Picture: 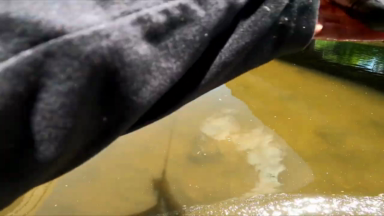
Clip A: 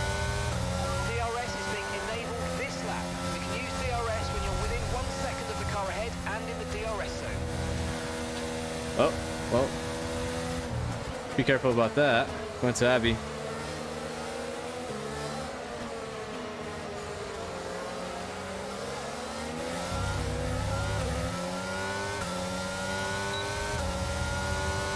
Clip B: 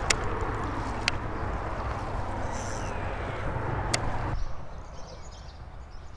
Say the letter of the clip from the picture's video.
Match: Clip B